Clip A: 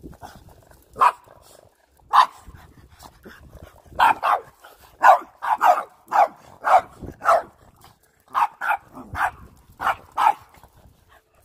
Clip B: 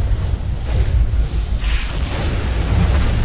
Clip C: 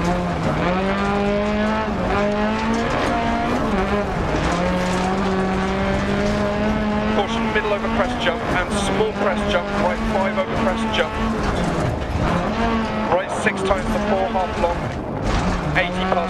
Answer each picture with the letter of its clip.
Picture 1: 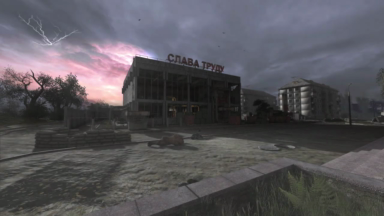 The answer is B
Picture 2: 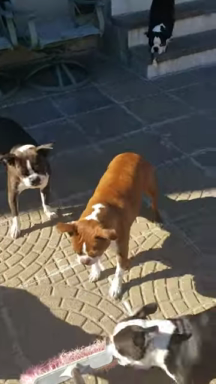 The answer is A